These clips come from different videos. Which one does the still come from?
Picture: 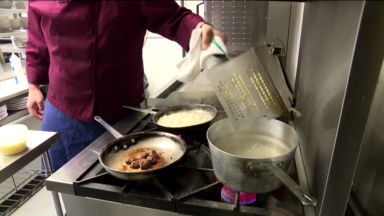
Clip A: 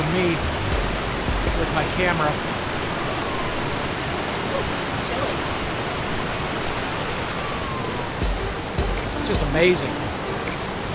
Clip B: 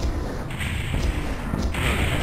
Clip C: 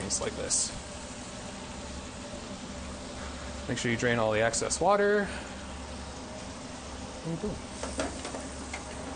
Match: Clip C